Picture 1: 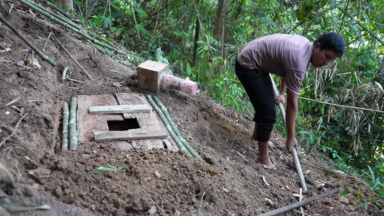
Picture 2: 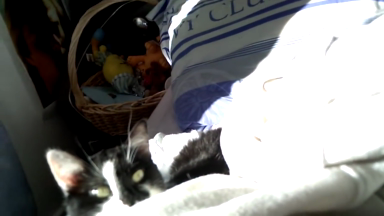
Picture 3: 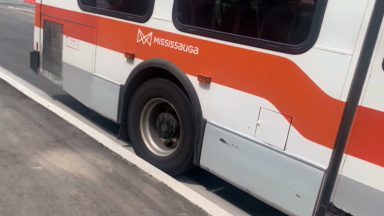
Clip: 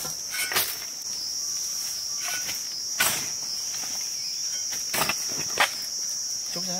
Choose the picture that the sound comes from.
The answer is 1